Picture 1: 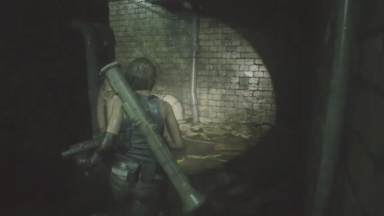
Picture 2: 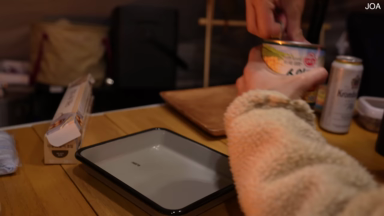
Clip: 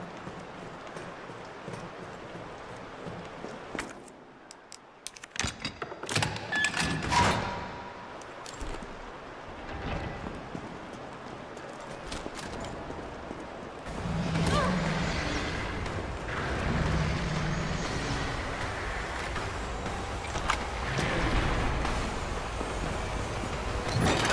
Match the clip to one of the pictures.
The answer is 1